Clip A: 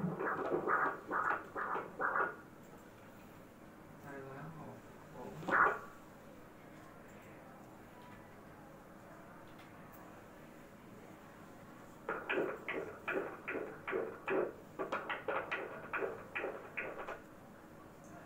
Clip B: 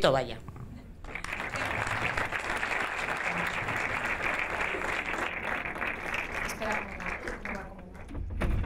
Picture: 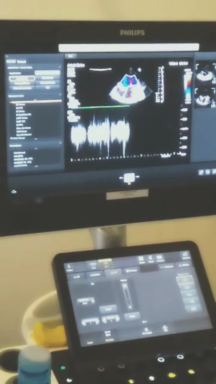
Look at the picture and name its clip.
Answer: A